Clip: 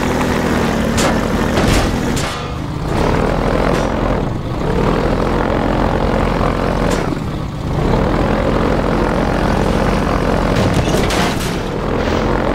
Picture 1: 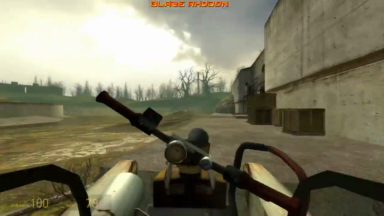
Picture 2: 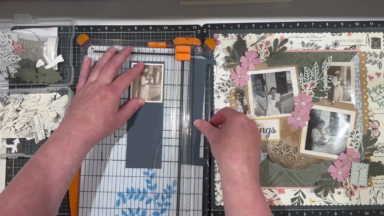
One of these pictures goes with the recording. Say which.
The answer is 1